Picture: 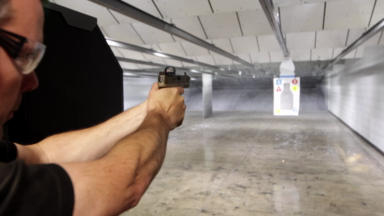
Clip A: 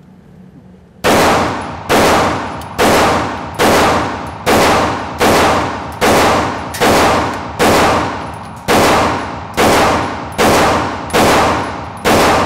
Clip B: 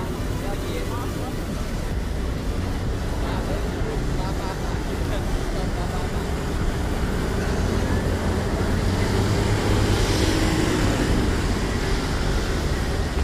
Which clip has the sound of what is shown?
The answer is A